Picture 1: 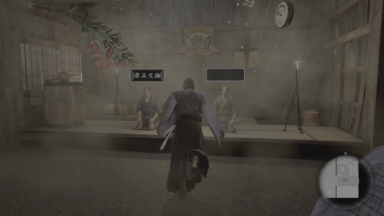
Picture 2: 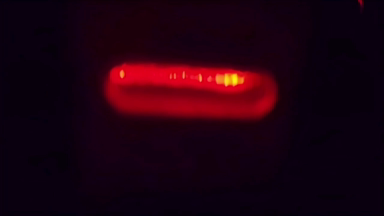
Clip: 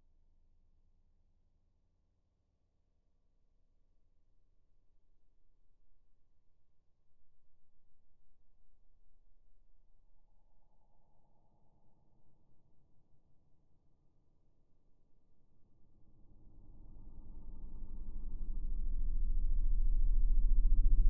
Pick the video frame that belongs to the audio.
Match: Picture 2